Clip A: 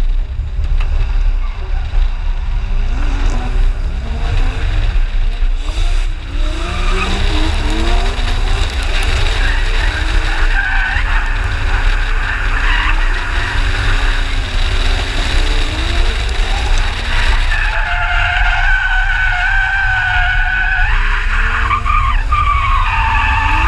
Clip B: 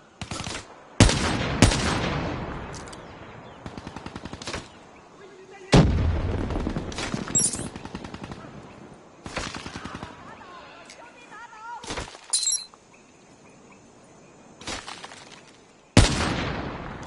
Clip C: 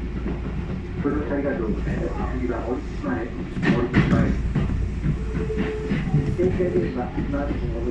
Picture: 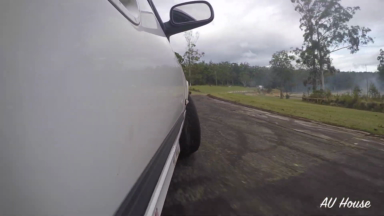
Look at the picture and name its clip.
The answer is A